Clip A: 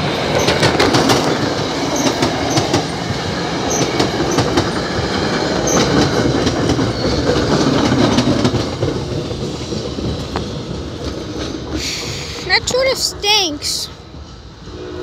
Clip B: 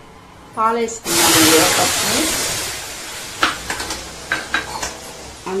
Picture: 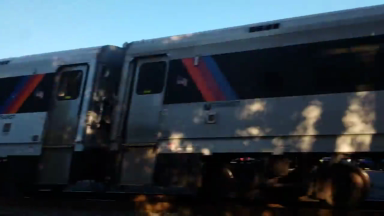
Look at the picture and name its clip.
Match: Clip A